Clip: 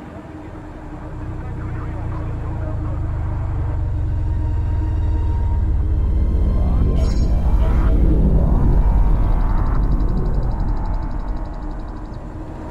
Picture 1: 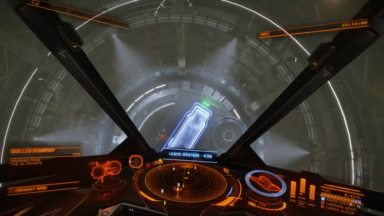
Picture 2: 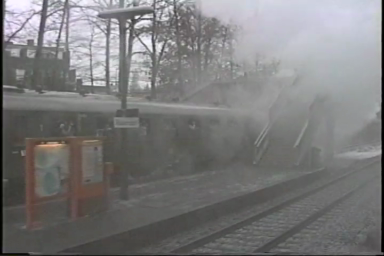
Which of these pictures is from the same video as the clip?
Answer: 1